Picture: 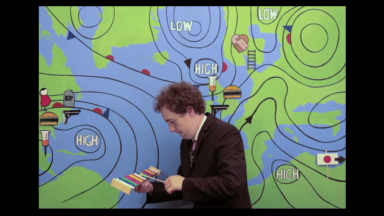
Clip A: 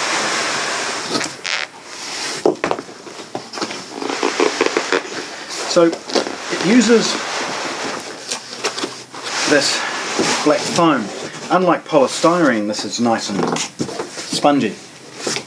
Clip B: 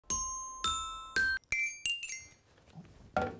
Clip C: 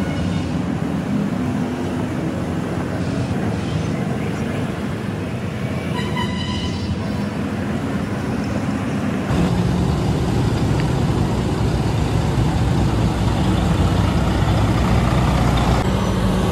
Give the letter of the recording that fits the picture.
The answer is B